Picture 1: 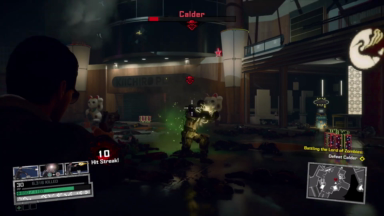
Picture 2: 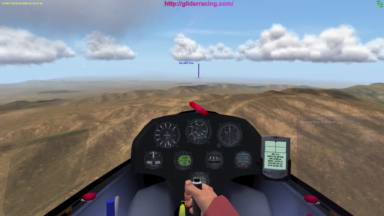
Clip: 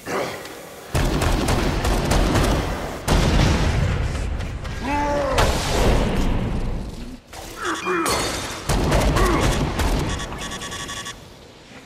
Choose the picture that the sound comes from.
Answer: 1